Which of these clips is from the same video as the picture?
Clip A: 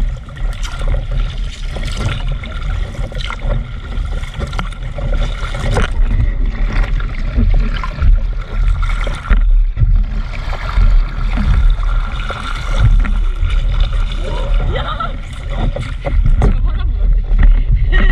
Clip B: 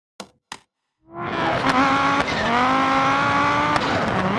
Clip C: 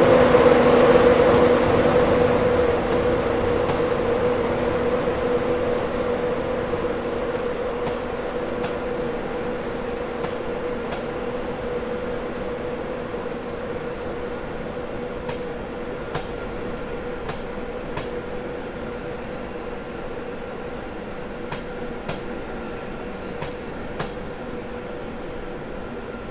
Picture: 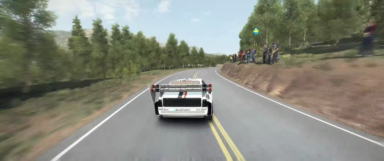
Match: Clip B